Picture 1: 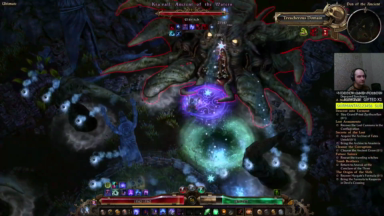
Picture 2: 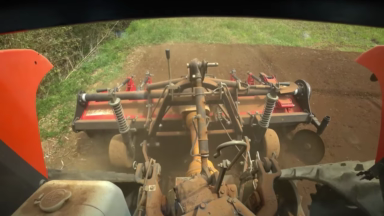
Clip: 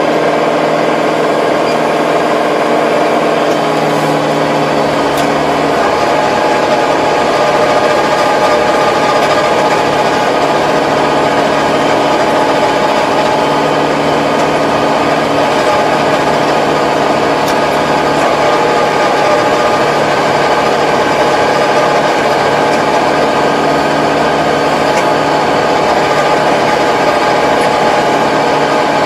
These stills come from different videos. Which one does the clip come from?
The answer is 2